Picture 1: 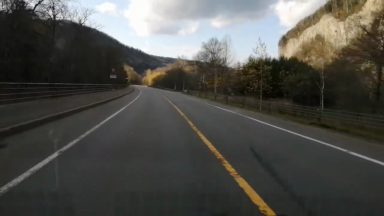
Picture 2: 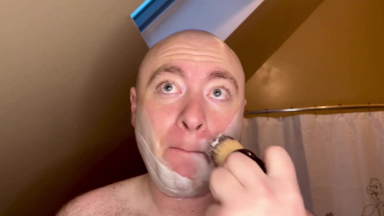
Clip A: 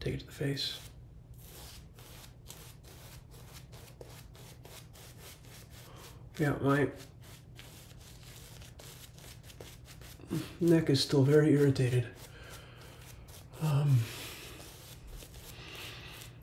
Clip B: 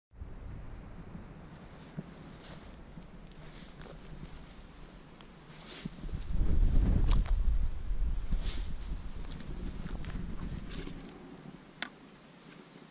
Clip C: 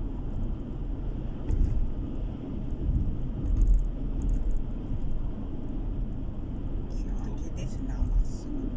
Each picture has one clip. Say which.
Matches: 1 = C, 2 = A